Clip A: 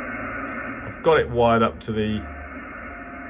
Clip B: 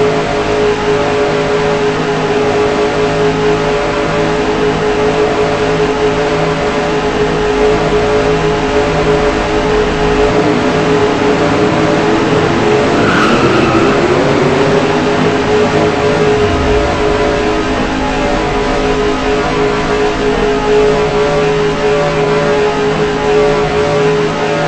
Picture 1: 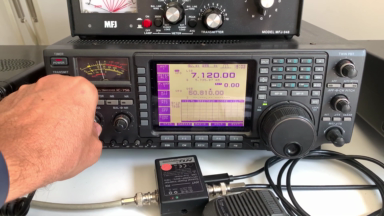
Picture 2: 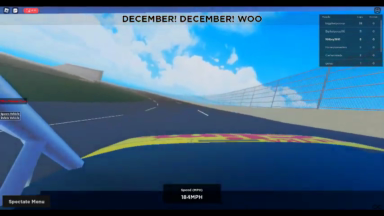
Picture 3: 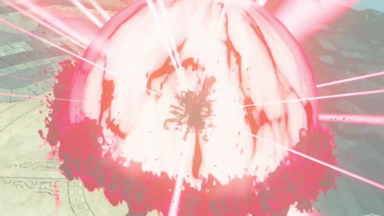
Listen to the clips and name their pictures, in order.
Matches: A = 1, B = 2